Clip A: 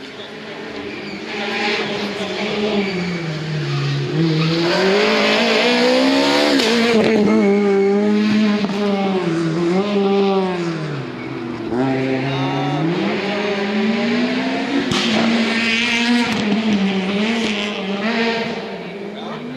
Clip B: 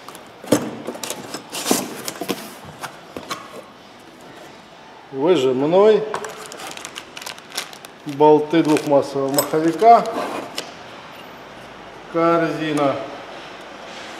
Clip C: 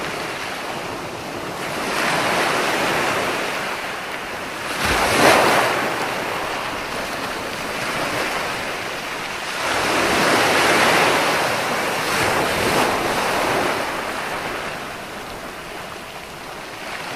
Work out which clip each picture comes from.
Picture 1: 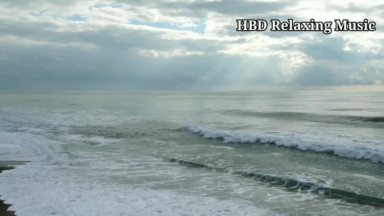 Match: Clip C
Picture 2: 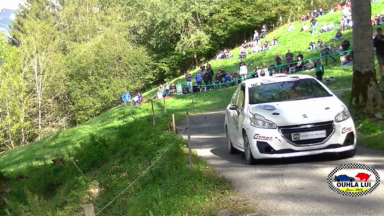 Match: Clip A